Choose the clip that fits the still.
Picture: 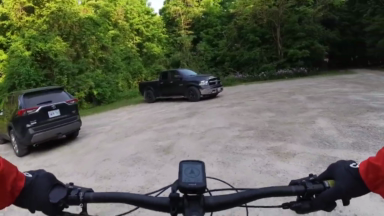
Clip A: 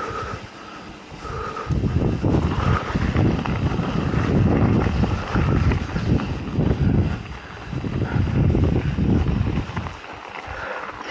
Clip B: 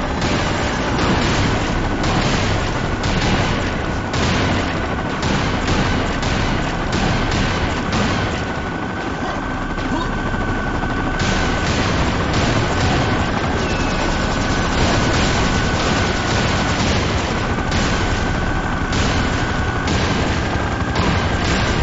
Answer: A